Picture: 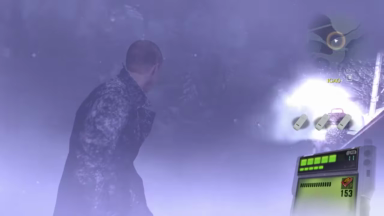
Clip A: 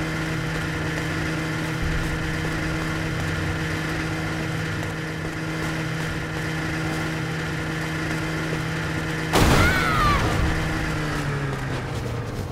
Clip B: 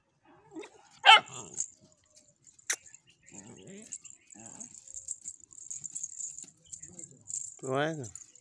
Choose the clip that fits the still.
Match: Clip A